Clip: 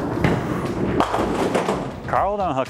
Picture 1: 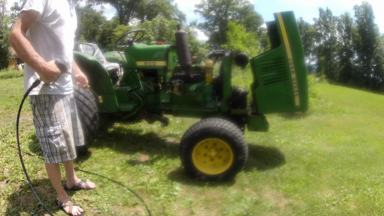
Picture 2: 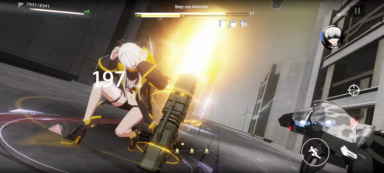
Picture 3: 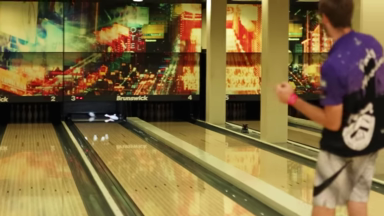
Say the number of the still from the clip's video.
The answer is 3